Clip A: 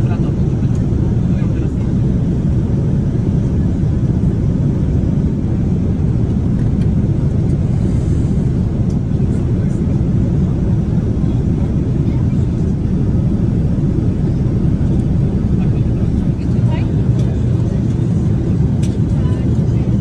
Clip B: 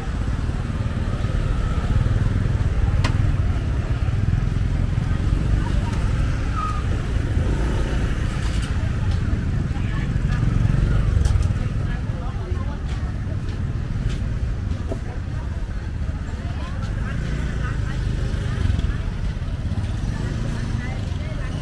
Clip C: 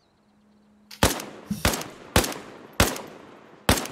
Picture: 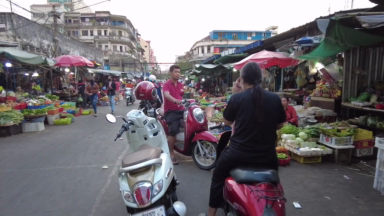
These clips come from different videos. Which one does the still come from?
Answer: B